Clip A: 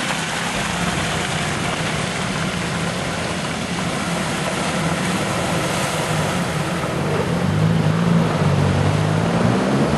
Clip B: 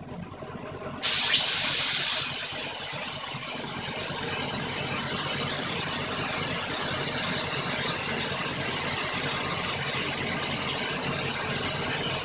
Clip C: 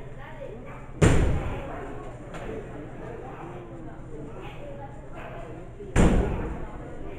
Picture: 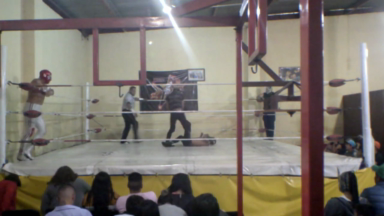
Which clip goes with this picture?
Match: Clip C